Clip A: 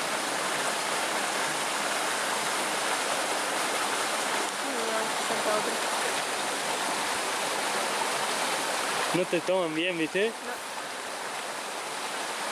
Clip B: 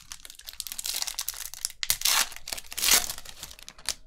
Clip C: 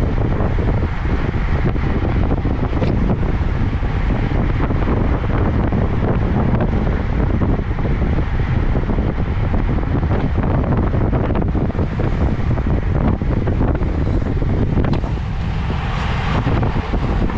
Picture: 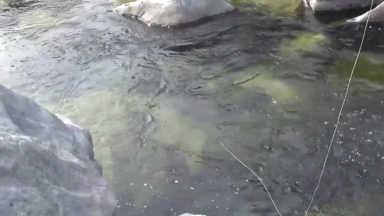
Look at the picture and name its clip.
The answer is A